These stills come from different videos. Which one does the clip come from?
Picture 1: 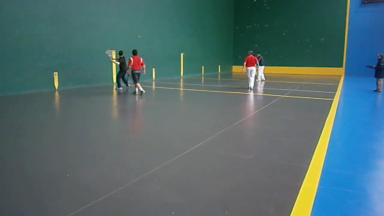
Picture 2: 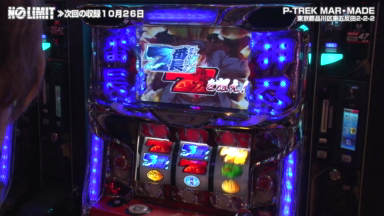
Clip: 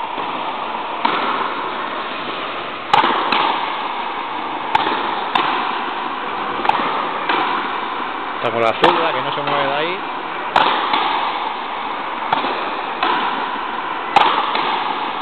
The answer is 1